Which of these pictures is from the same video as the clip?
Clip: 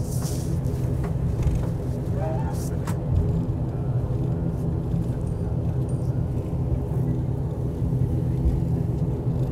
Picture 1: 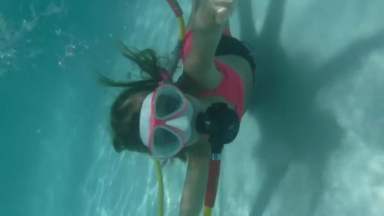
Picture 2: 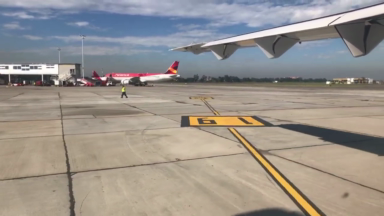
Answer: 2